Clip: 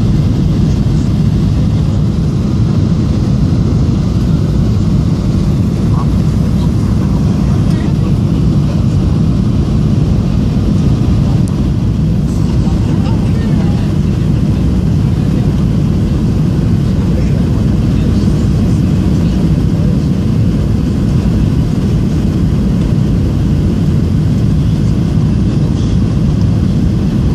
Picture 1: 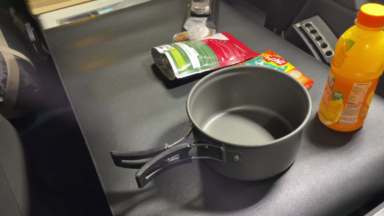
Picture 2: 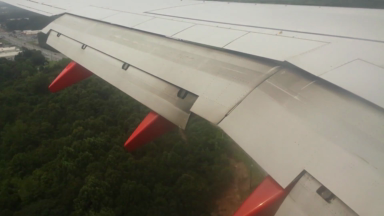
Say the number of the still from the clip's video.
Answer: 2